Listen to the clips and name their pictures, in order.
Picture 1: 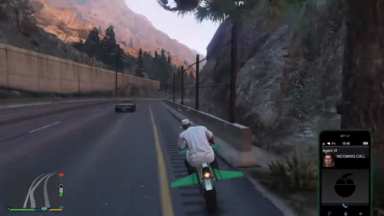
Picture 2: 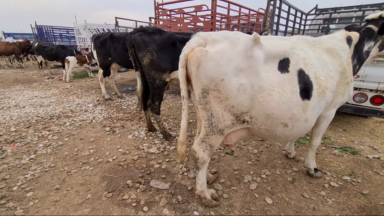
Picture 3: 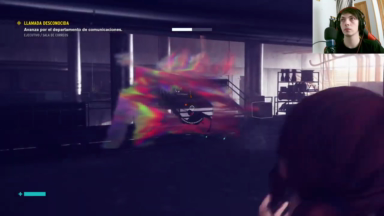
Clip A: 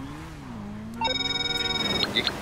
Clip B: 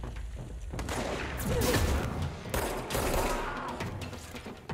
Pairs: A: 1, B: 3